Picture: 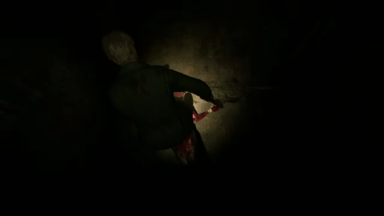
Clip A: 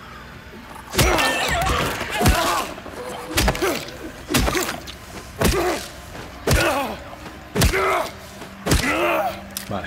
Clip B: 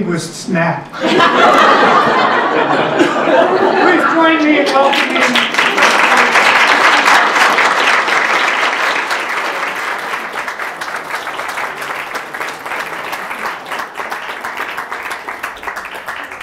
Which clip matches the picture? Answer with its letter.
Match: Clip A